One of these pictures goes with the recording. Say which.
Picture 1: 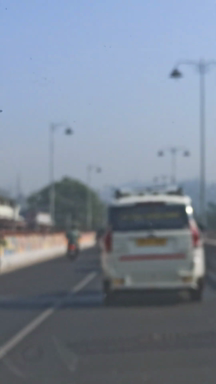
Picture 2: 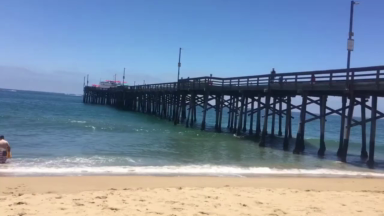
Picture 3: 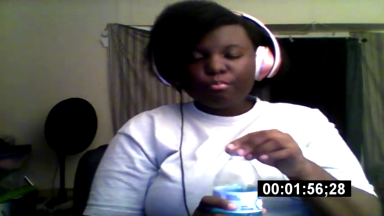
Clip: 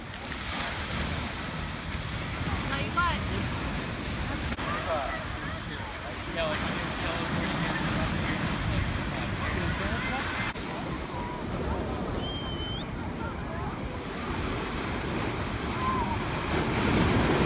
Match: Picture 2